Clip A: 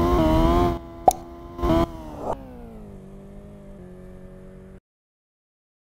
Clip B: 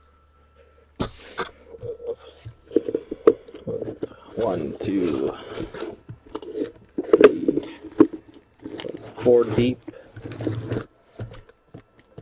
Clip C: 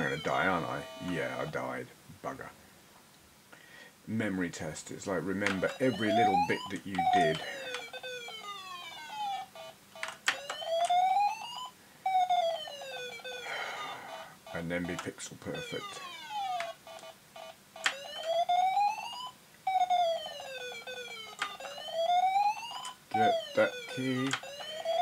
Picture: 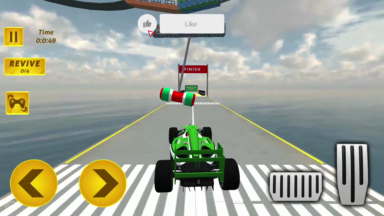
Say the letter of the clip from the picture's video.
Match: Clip A